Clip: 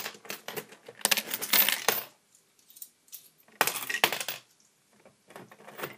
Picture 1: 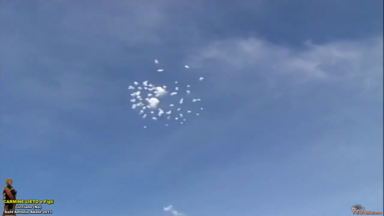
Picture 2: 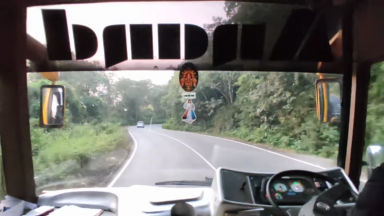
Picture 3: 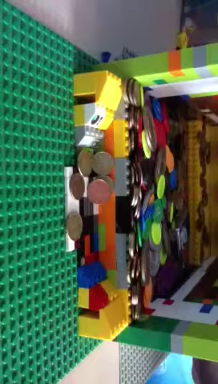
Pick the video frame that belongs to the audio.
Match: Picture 3